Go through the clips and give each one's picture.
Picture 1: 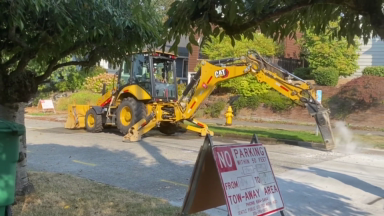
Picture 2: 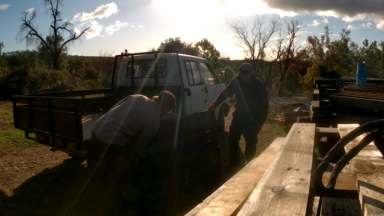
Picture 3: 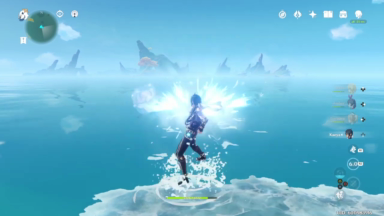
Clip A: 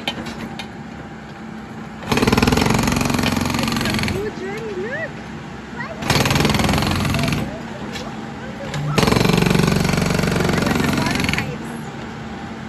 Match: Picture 1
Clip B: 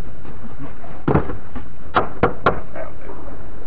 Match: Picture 2